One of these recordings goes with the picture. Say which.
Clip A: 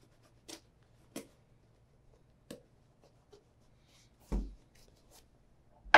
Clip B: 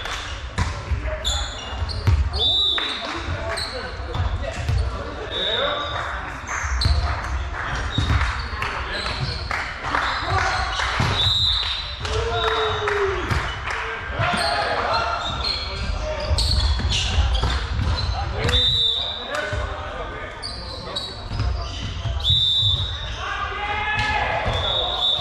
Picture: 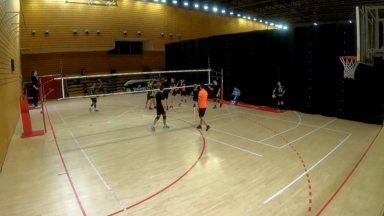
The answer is B